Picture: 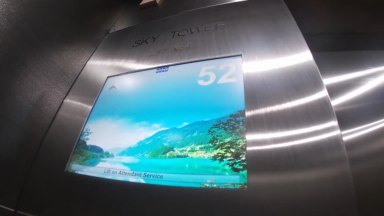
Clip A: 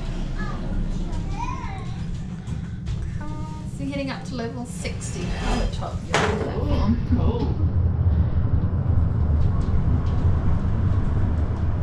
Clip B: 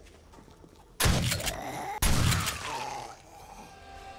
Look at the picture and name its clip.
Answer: A